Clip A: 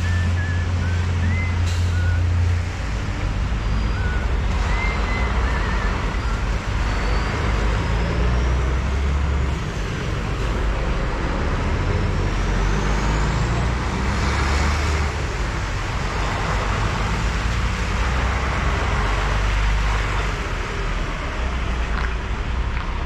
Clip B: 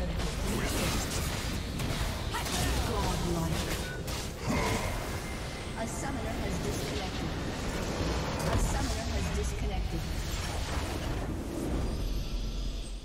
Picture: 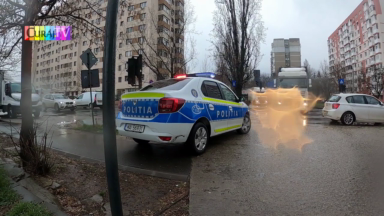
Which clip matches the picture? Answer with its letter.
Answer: A